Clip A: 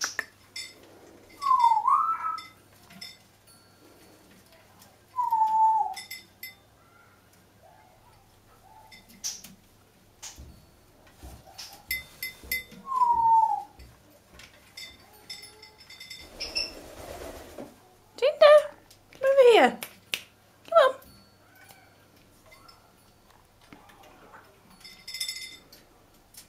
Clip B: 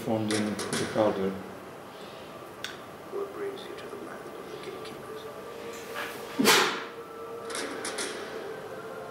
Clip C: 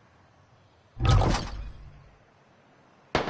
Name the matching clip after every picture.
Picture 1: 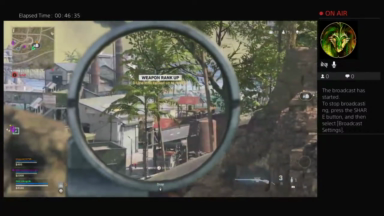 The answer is C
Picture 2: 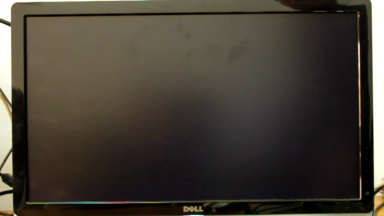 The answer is B